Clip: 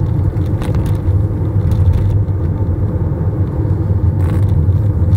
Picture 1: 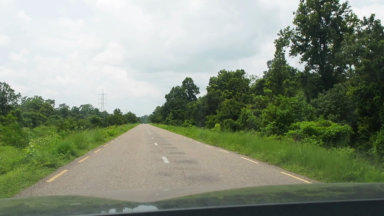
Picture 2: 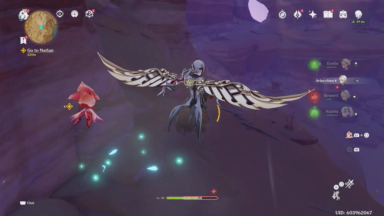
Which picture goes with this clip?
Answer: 1